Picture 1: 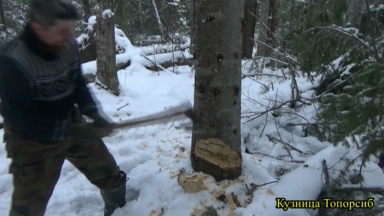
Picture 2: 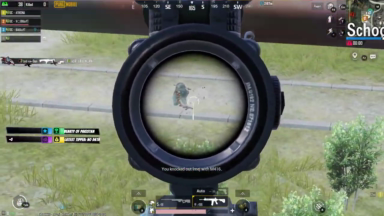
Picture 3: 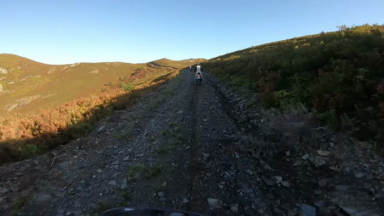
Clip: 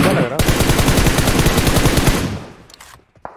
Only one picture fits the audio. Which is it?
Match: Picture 2